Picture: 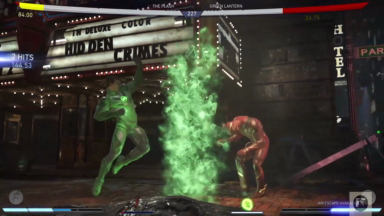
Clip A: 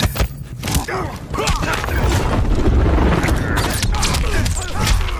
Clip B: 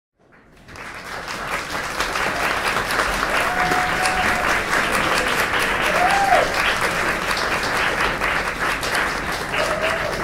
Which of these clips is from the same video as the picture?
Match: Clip A